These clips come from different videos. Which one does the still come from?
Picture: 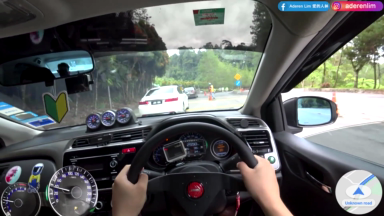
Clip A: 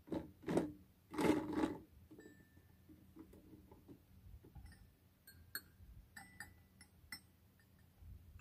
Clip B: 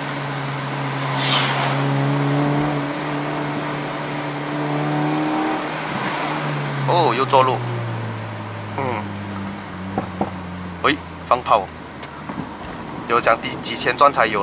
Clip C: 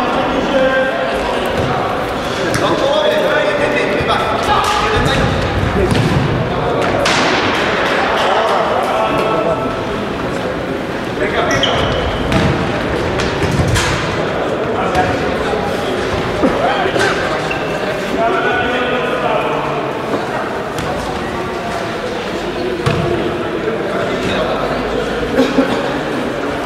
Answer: B